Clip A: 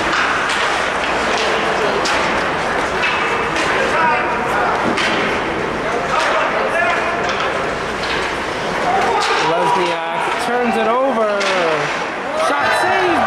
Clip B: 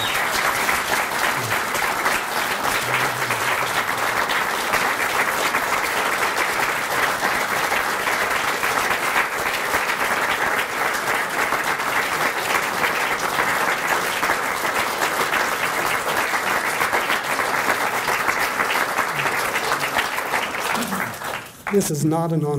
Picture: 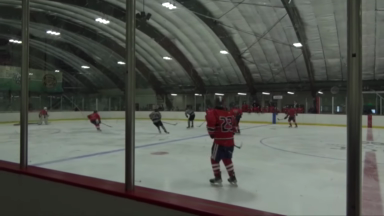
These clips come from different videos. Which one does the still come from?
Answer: A